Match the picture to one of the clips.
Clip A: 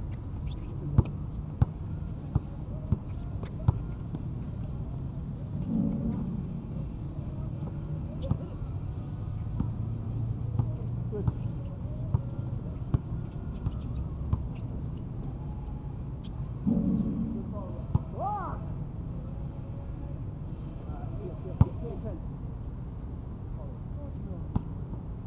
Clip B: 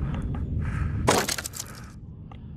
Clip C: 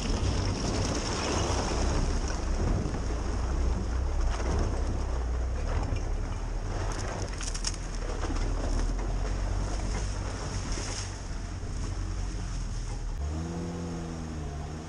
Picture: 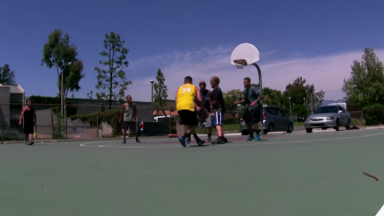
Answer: A